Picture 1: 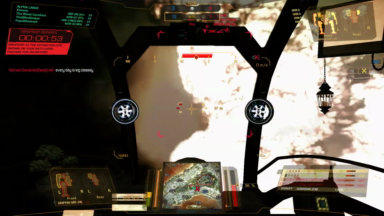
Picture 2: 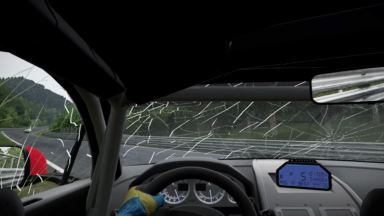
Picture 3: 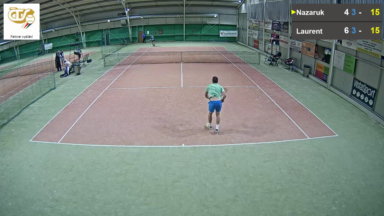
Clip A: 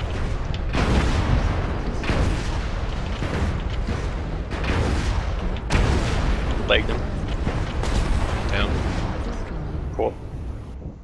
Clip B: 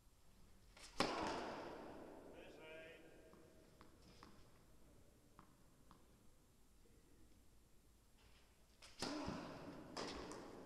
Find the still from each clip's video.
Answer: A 1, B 3